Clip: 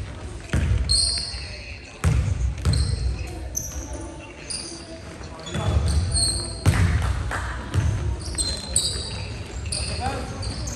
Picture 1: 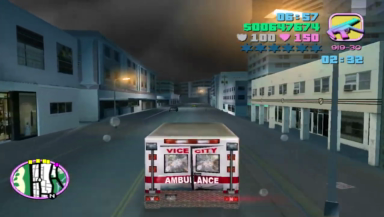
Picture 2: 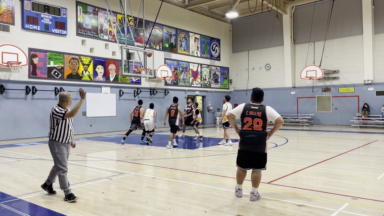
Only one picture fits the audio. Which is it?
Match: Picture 2